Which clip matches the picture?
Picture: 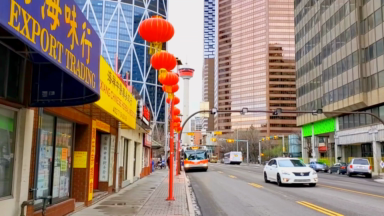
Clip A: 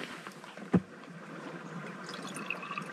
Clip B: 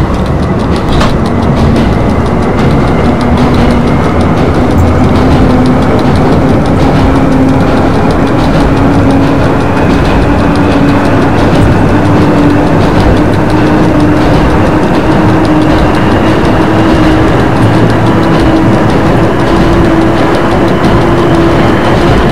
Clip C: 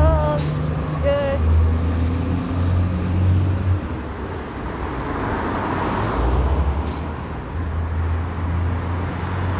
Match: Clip C